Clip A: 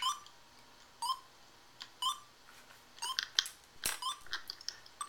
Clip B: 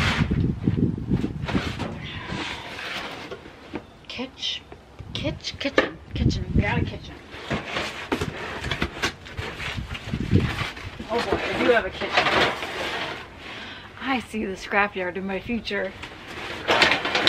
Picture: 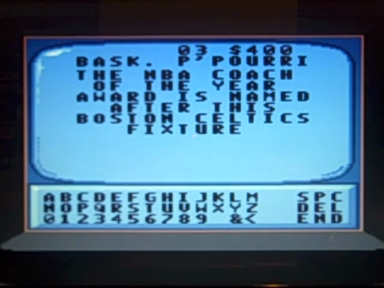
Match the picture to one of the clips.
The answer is A